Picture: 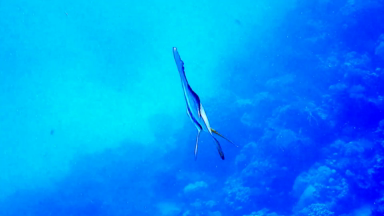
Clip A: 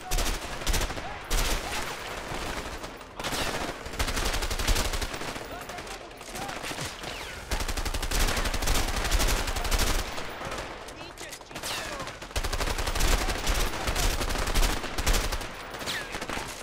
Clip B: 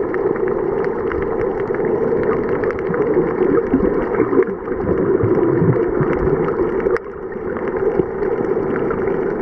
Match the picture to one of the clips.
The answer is B